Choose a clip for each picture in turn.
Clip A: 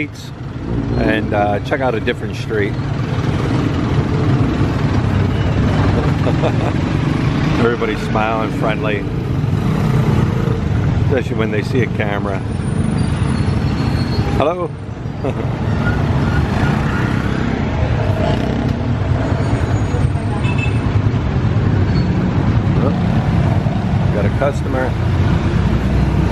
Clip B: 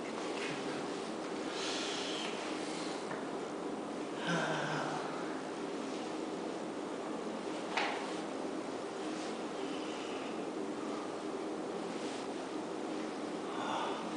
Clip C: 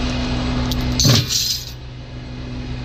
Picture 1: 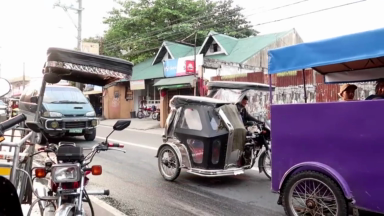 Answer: A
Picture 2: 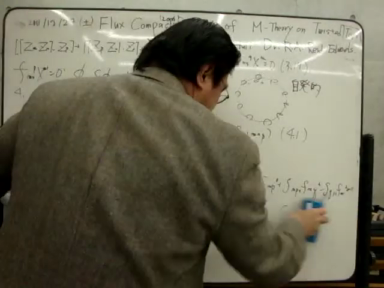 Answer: B